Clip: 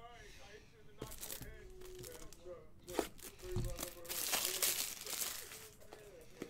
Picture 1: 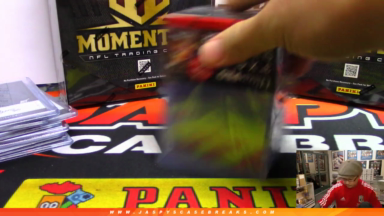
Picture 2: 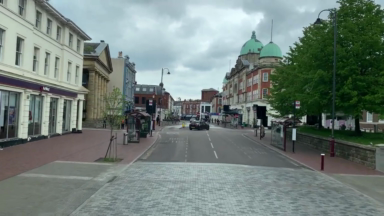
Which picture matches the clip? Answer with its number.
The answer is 1